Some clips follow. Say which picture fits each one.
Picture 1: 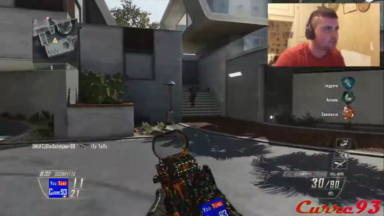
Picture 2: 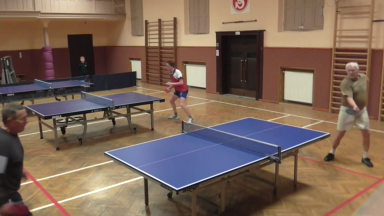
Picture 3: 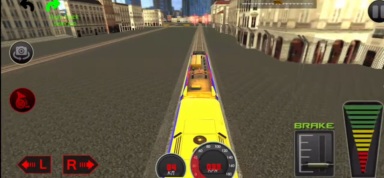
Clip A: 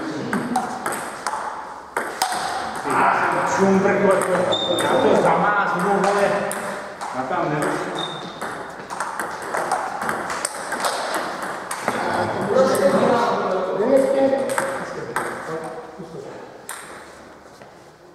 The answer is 2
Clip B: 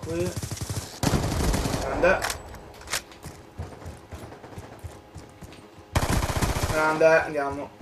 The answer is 1